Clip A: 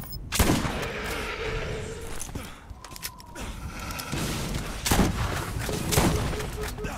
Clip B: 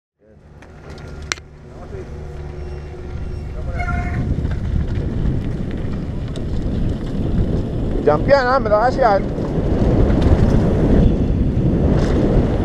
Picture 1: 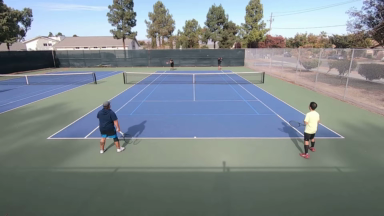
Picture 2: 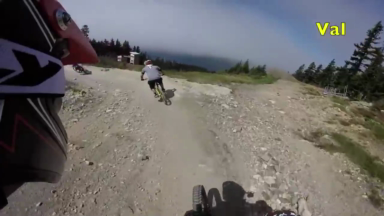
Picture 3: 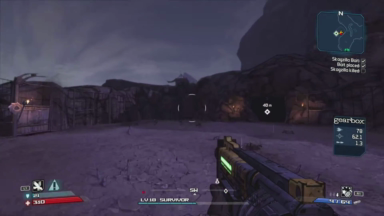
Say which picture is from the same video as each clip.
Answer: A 3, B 2